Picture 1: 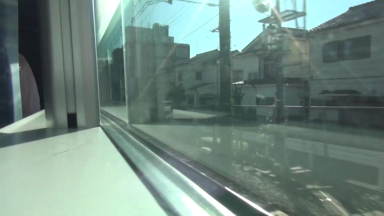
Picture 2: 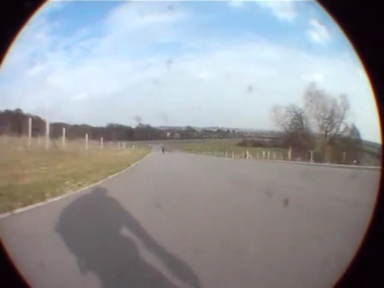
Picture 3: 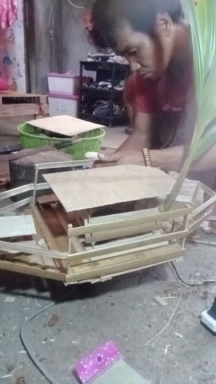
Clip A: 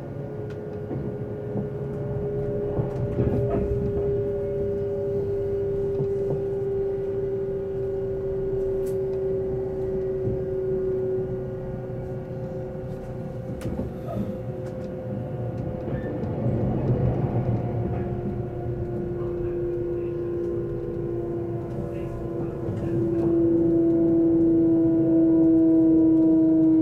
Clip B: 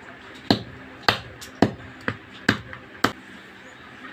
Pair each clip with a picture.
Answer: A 1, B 3